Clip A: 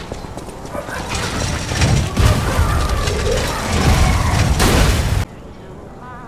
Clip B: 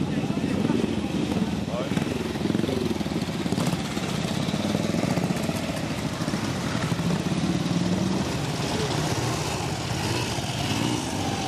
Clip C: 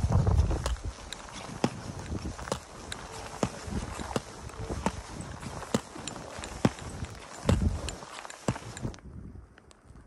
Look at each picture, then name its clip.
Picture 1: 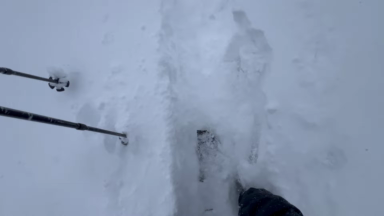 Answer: C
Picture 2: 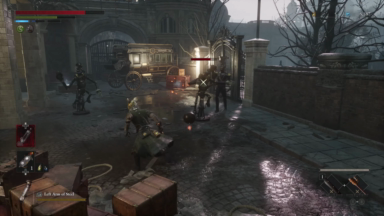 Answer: A